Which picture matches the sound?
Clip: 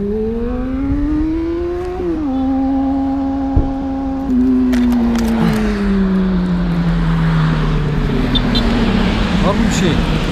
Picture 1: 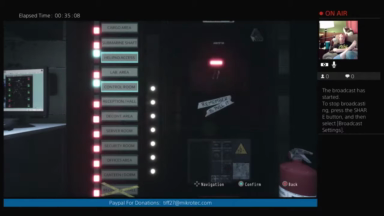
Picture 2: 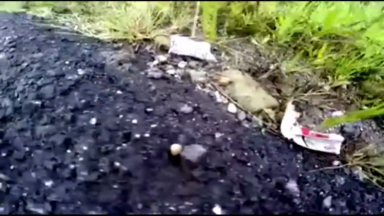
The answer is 2